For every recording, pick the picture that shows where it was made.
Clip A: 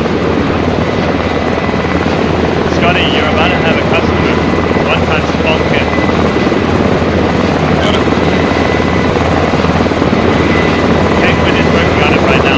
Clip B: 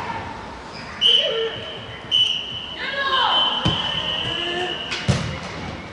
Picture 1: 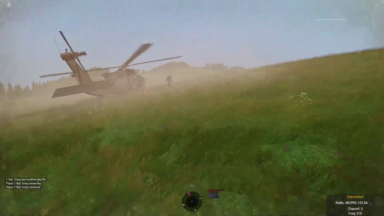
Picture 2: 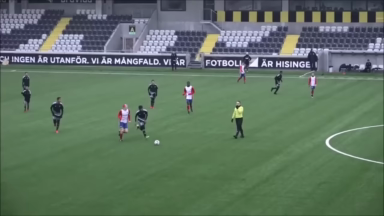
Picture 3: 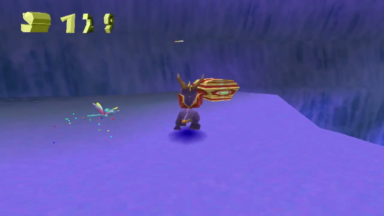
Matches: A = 1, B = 2